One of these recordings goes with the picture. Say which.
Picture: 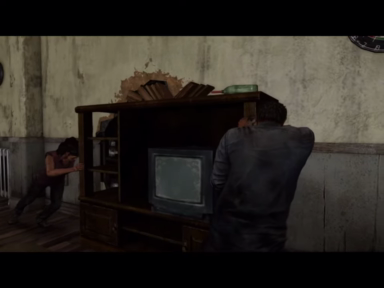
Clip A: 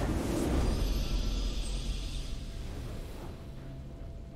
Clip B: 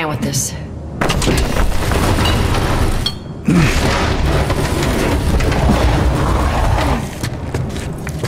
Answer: B